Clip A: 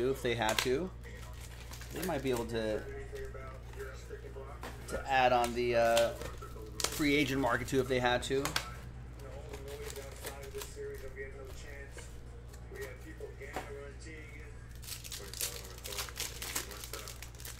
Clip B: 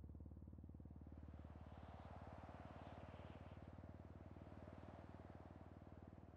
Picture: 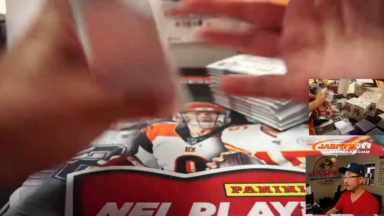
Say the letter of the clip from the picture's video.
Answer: A